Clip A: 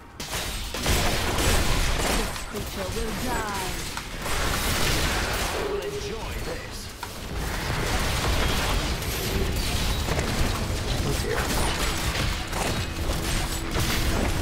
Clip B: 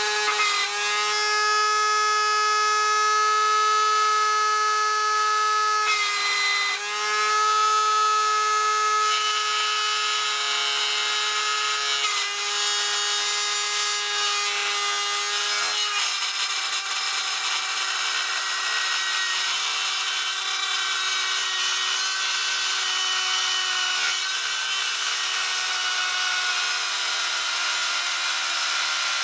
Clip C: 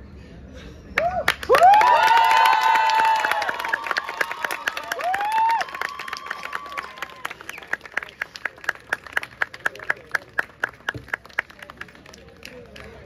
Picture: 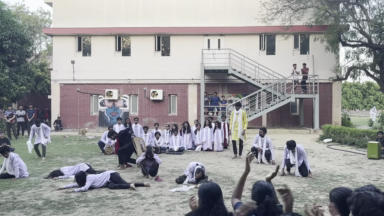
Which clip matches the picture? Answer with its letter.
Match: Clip C